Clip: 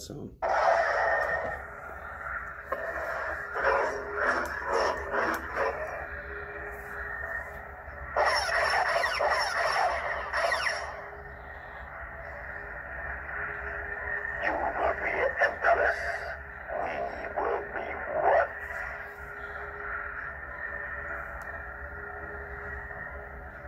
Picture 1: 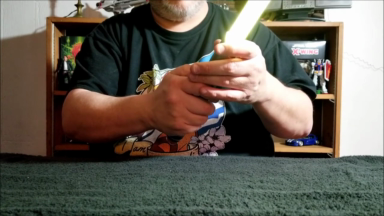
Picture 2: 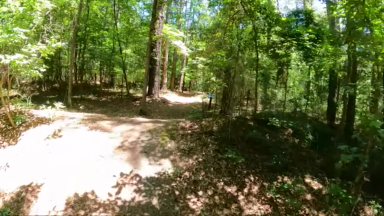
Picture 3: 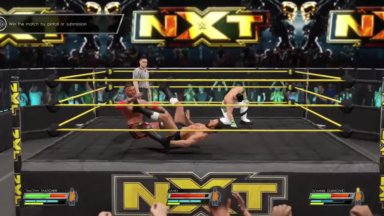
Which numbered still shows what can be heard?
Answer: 1